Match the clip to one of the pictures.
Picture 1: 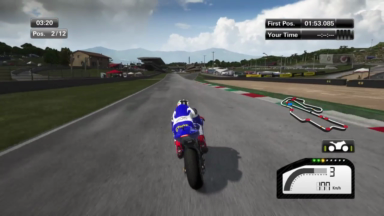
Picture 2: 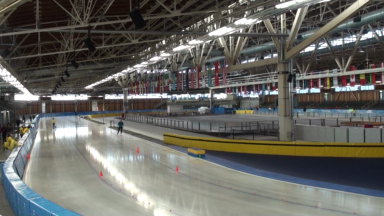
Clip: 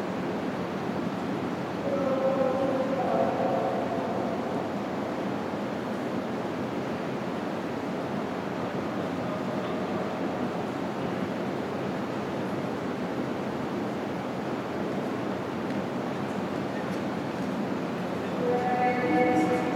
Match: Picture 2